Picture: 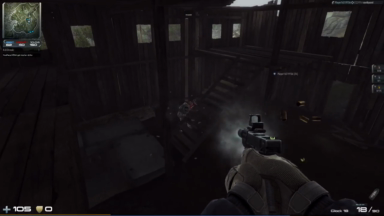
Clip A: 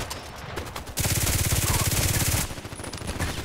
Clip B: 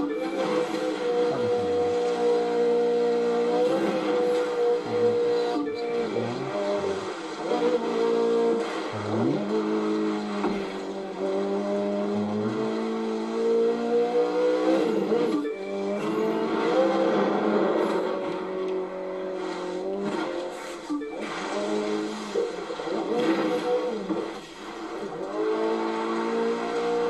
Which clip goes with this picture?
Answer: A